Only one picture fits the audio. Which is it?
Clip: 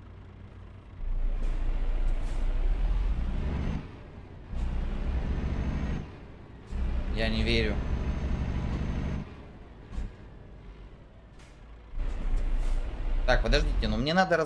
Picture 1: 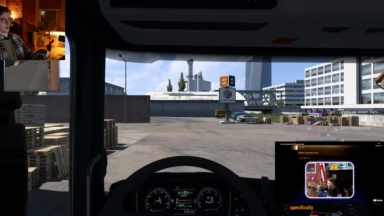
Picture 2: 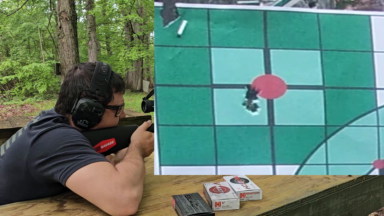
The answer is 1